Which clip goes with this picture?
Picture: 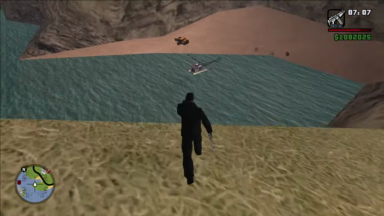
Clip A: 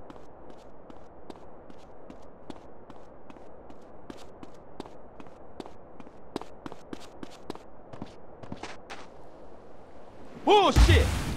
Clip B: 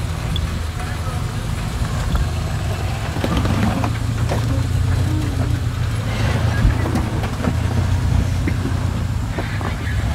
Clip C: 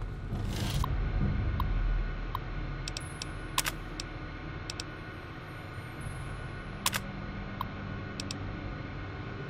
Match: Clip A